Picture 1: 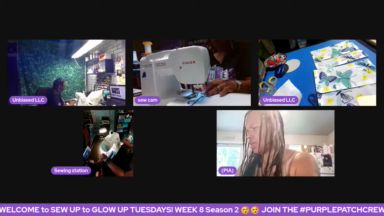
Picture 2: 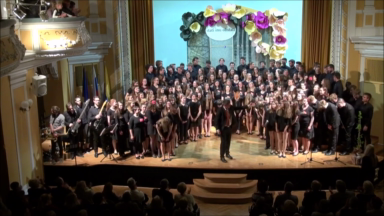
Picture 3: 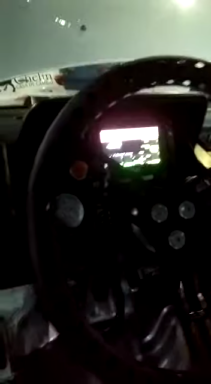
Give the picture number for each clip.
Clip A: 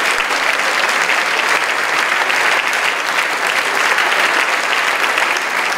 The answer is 2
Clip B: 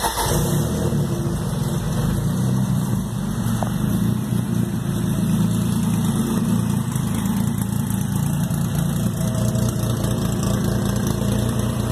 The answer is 3